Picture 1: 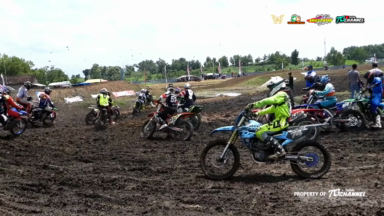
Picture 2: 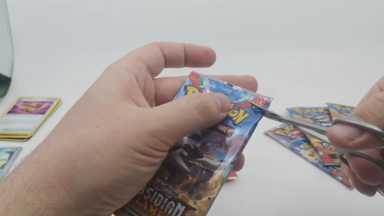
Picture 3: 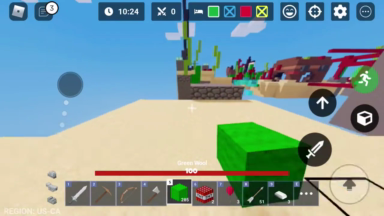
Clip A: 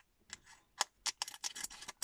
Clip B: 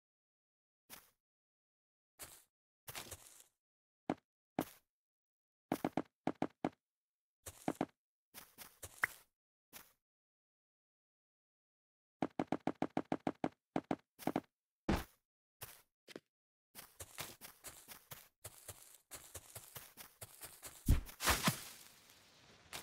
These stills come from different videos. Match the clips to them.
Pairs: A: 2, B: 3